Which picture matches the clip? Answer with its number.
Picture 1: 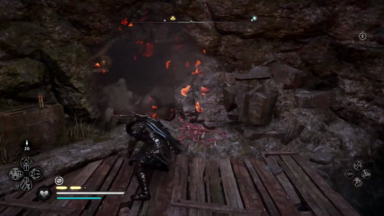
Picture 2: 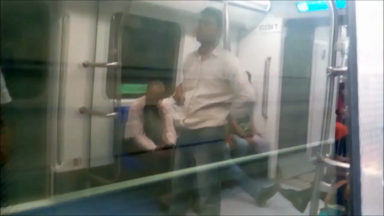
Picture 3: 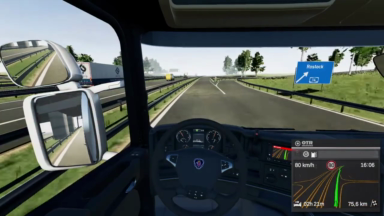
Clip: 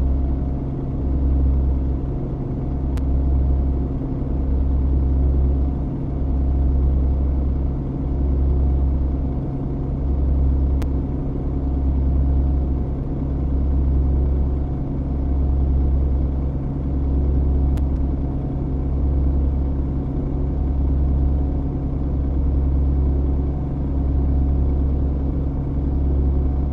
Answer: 3